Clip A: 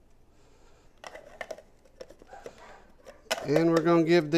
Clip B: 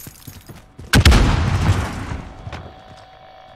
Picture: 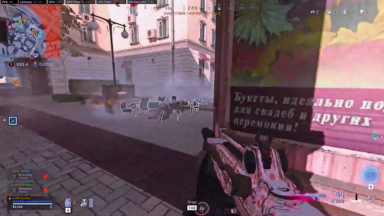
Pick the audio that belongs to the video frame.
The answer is B